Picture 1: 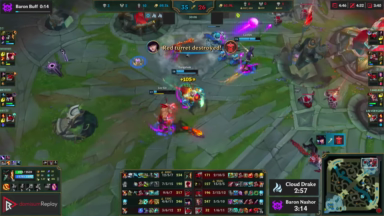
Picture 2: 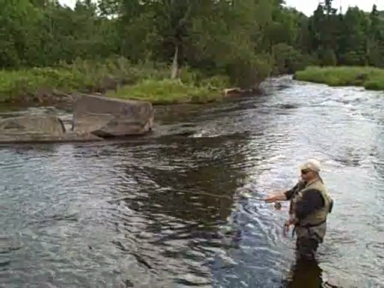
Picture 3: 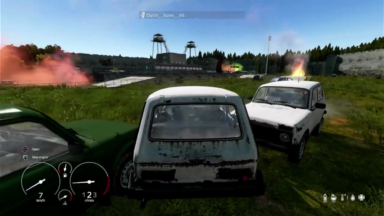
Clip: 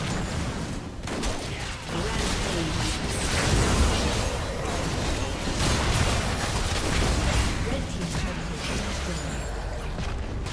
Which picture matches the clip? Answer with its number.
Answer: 1